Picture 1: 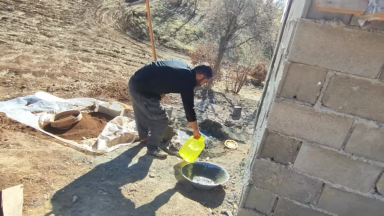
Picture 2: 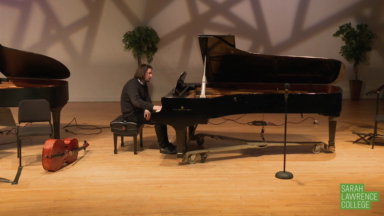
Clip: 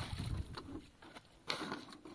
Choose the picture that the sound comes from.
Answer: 1